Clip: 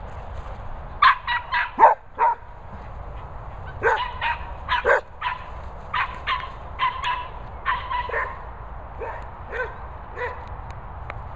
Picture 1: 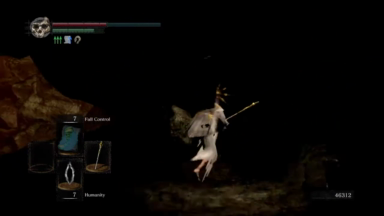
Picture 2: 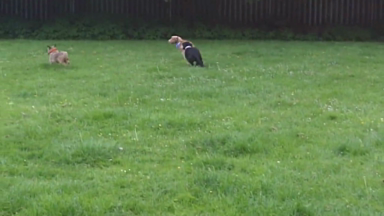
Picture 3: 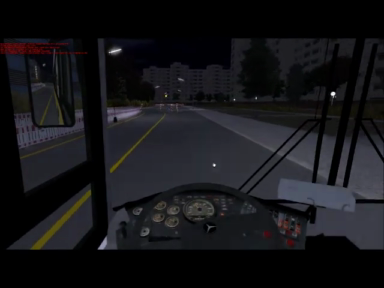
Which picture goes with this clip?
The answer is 2